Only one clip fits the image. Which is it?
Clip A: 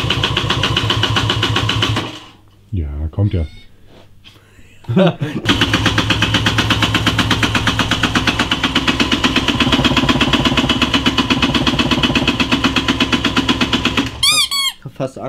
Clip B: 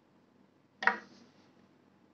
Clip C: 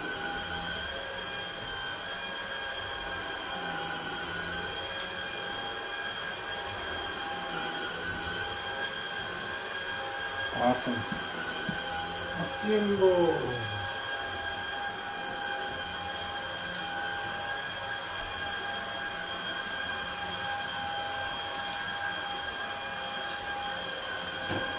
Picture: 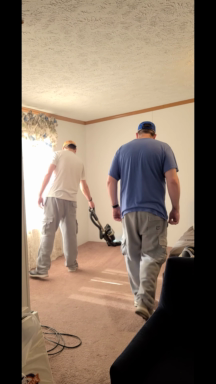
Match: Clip C